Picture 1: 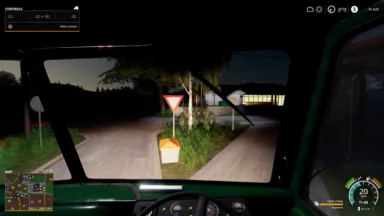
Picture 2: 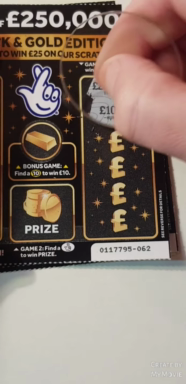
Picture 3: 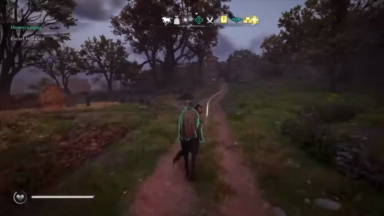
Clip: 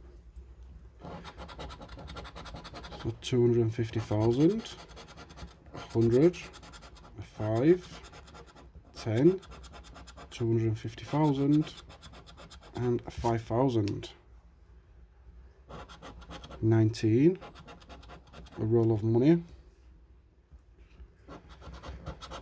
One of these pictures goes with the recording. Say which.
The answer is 2